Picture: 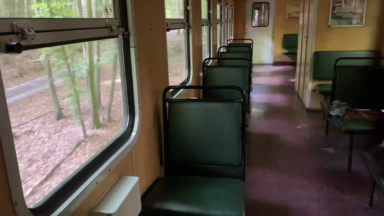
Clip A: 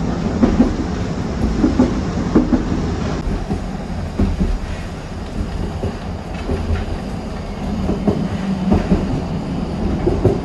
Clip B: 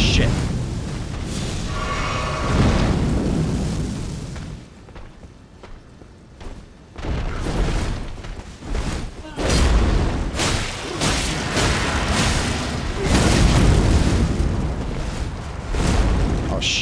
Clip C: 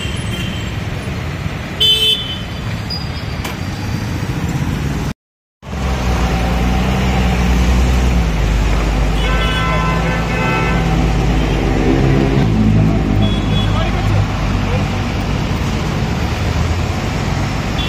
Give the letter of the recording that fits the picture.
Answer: A